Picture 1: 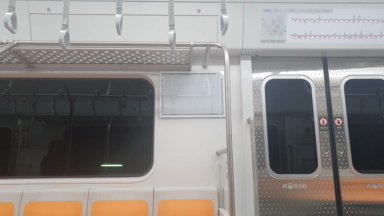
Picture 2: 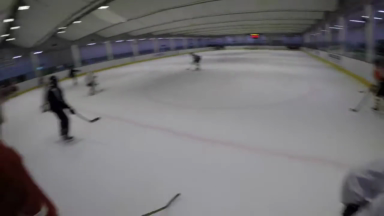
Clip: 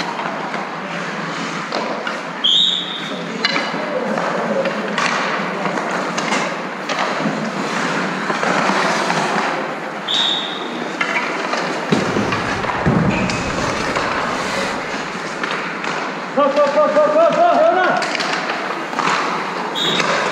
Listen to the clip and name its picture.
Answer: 2